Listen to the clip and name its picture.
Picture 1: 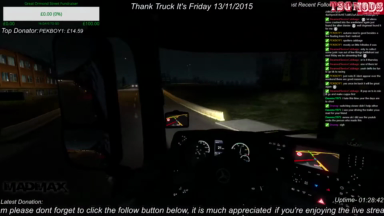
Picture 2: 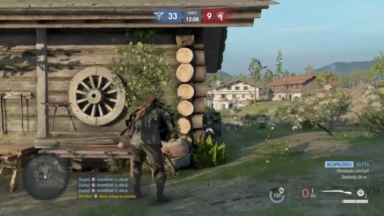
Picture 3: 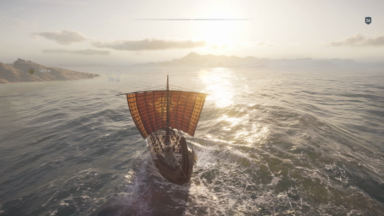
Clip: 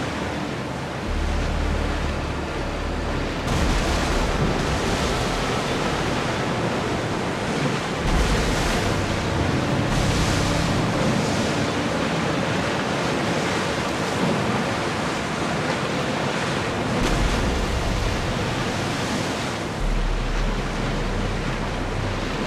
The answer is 3